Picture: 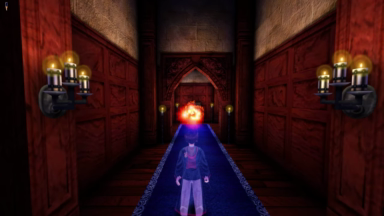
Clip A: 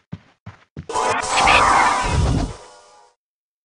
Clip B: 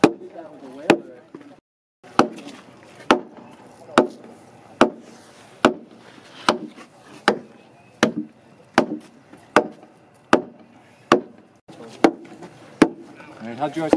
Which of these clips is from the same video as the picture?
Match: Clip A